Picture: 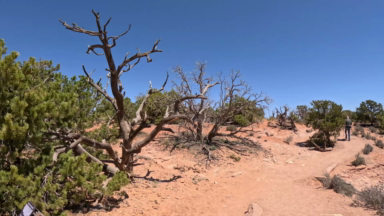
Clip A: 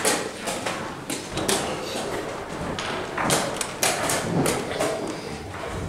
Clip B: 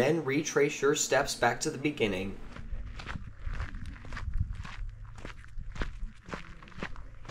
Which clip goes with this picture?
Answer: B